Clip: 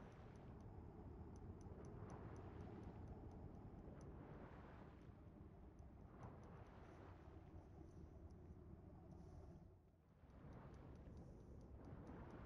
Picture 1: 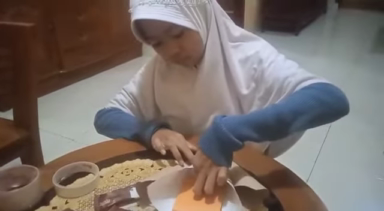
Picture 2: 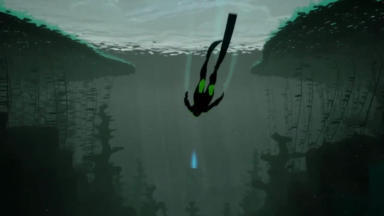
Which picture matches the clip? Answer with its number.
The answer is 2